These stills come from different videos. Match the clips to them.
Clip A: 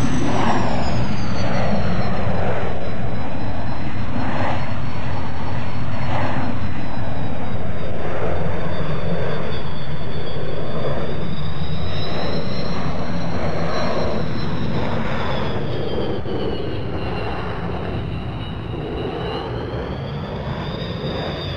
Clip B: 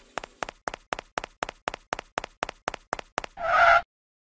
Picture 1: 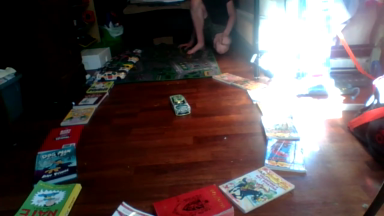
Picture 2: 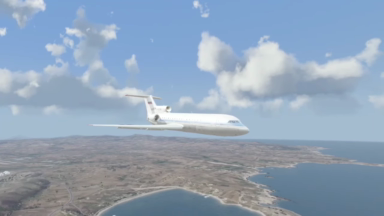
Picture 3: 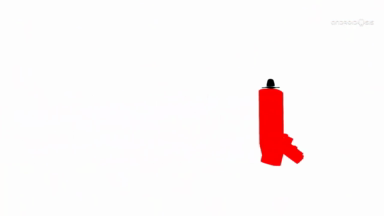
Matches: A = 2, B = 3